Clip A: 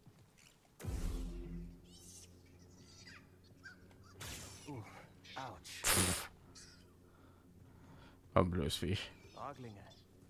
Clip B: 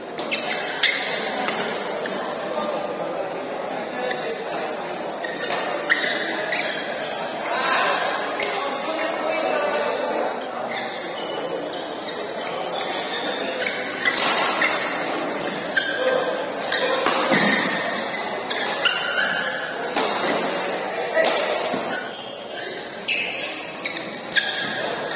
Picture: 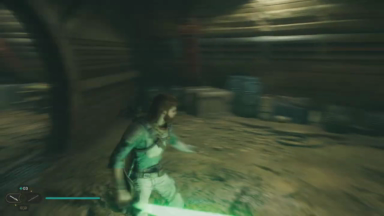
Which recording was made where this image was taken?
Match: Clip A